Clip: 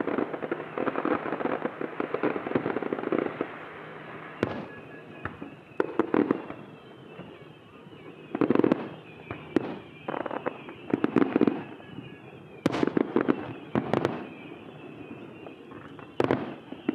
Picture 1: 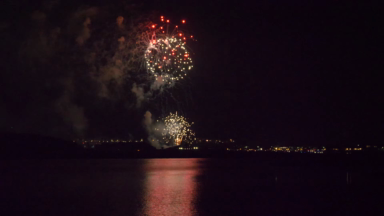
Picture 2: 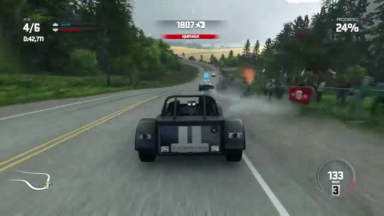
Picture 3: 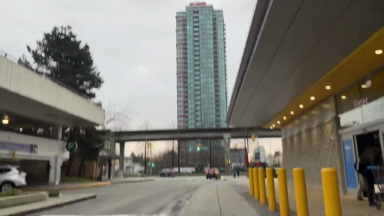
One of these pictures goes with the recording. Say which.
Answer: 1